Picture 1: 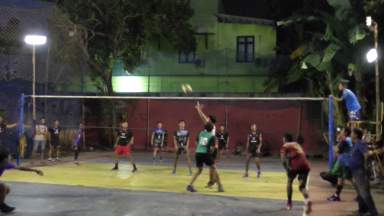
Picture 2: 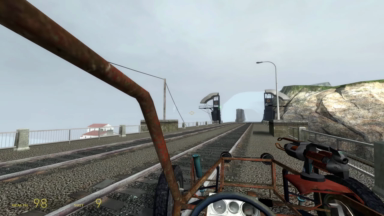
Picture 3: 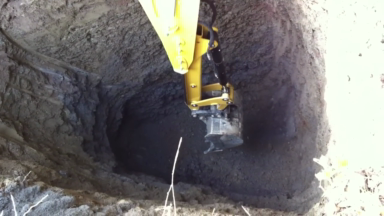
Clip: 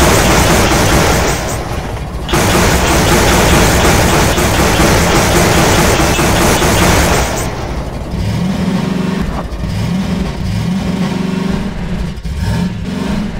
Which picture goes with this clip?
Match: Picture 2